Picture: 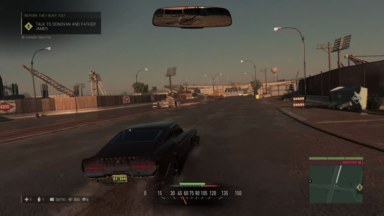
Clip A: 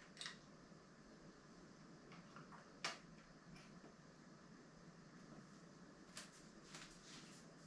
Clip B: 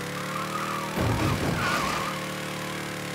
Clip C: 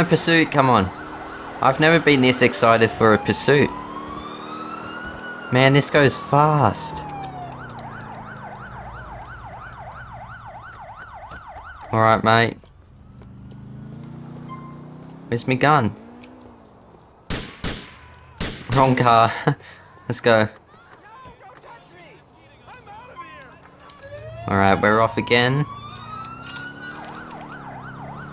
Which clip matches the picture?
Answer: B